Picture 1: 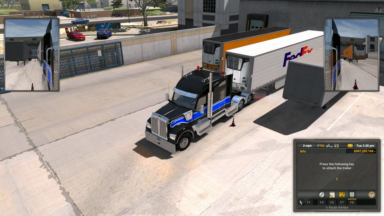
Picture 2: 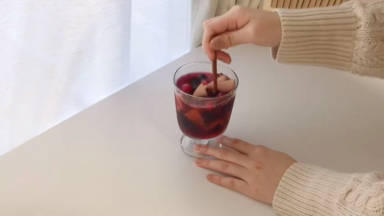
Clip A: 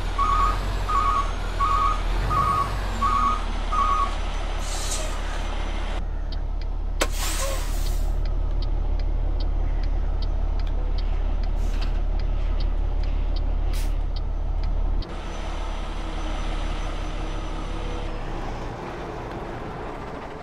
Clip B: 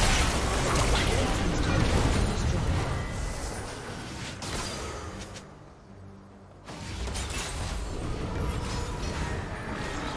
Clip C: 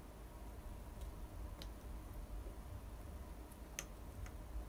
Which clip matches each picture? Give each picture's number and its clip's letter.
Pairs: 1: A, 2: C